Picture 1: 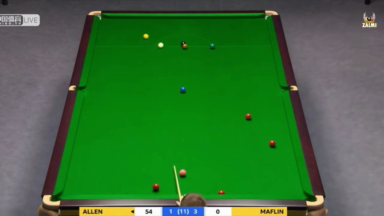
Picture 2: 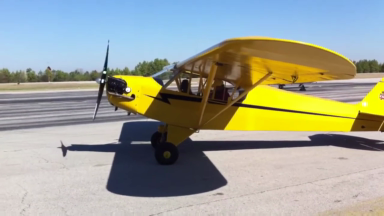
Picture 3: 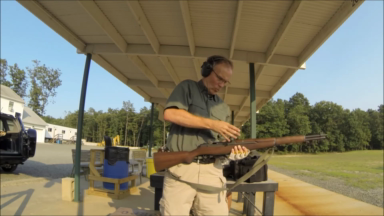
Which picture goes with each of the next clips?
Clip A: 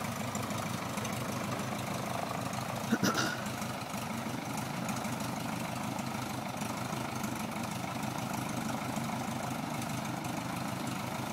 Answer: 2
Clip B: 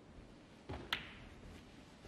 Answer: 1